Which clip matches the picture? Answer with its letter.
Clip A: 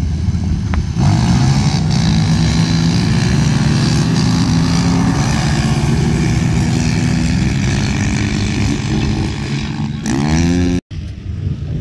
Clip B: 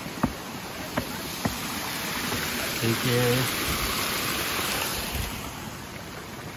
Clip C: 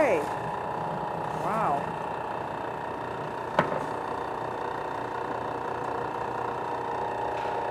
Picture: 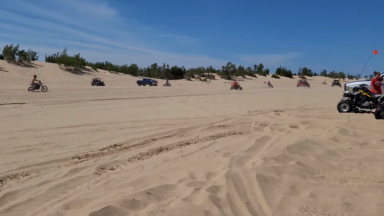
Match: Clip A